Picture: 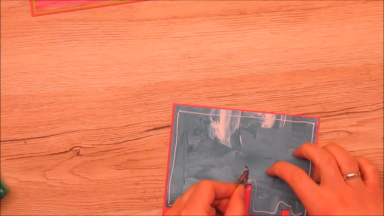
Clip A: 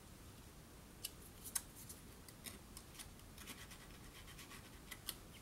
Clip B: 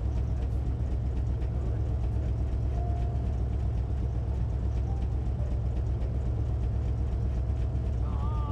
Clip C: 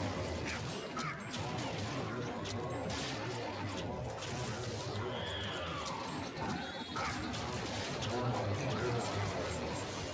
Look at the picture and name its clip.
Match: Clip A